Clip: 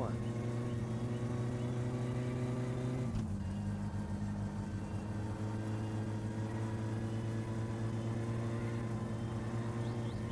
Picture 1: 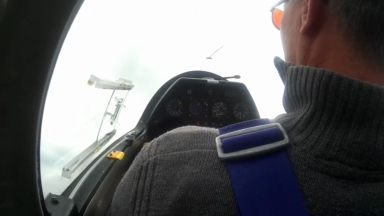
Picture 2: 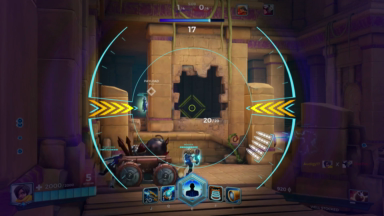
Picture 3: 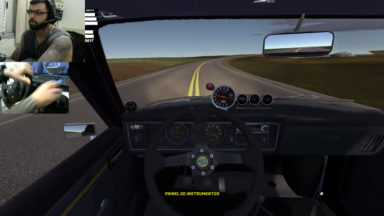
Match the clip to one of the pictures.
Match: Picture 3